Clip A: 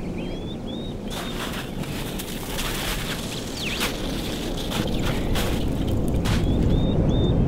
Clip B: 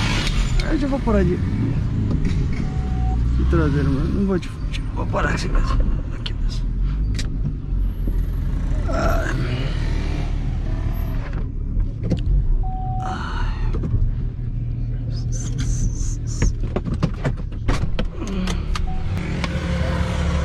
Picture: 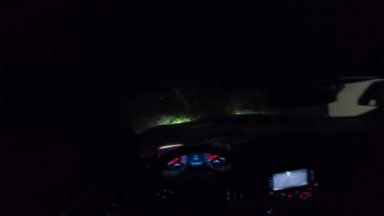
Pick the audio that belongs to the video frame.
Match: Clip B